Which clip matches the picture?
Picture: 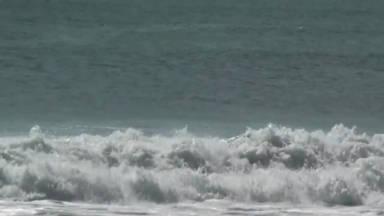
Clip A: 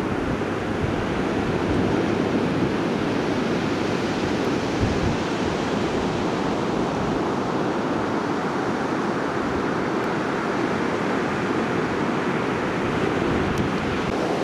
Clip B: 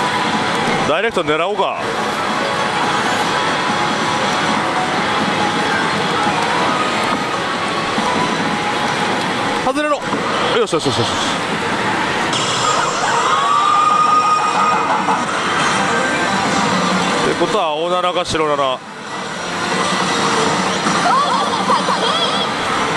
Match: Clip A